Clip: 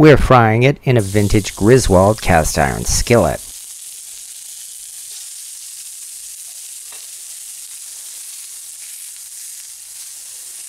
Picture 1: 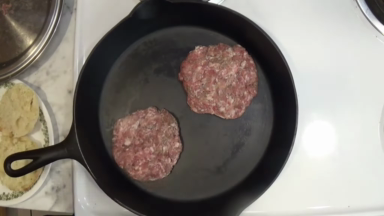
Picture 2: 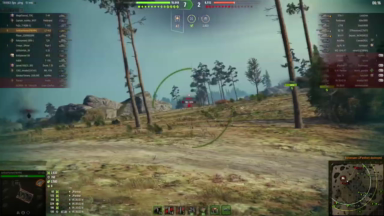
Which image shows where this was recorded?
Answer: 1